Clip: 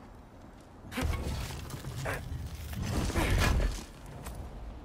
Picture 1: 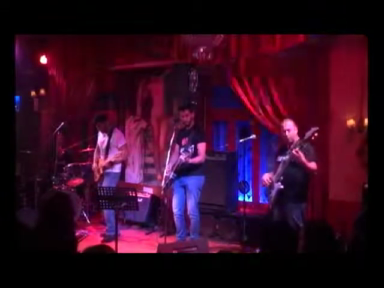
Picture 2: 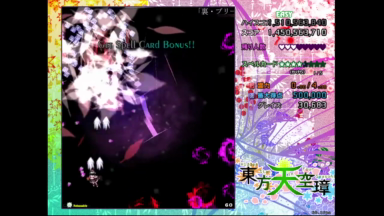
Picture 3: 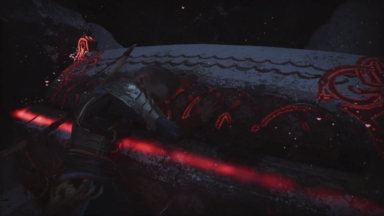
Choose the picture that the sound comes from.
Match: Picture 3